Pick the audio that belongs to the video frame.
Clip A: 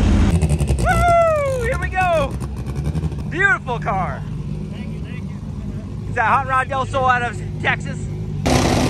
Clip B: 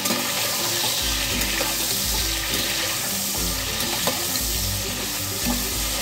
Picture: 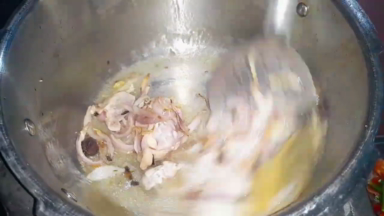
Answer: B